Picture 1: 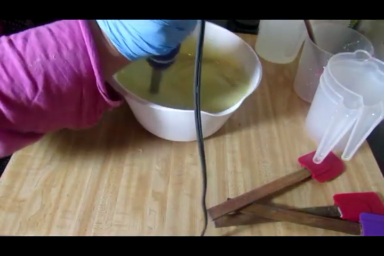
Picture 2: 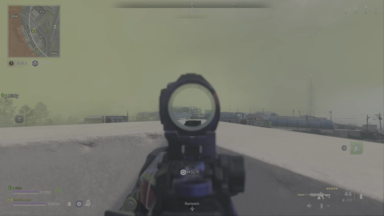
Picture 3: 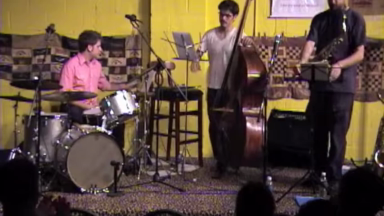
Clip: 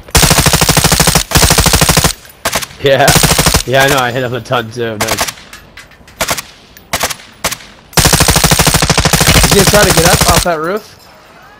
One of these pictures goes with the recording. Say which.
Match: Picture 2